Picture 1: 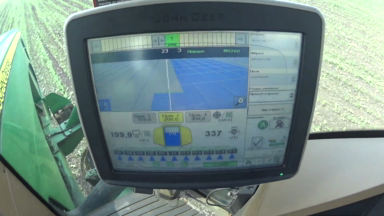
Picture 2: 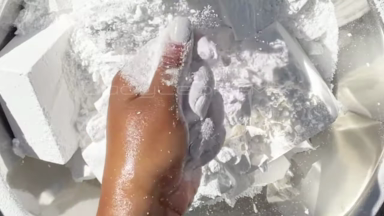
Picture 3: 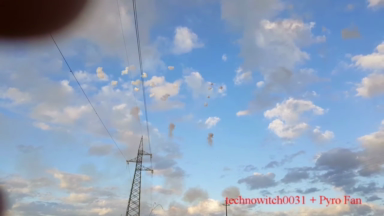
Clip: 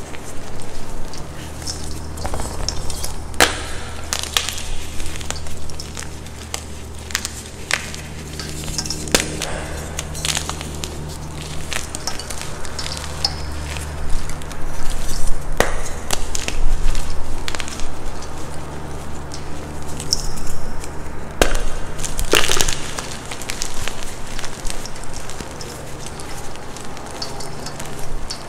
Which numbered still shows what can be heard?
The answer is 2